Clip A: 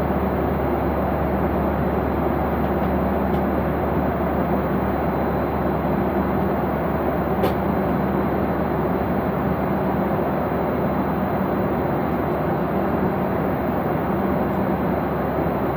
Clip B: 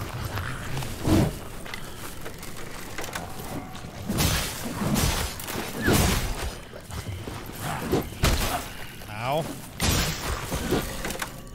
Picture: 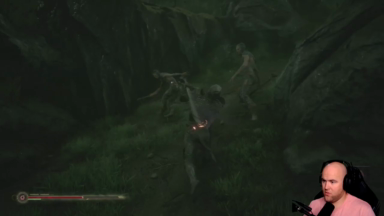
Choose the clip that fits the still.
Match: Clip B